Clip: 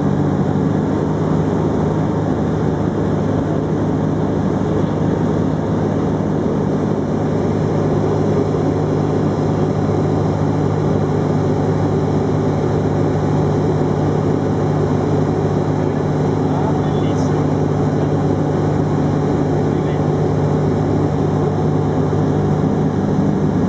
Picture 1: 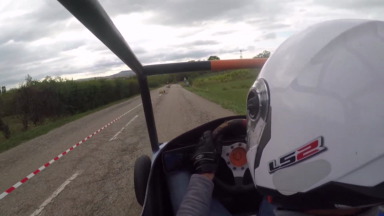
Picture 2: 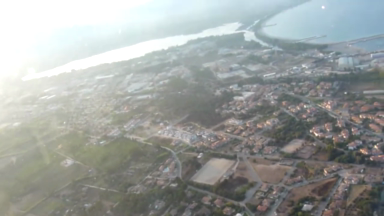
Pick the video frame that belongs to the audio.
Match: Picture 2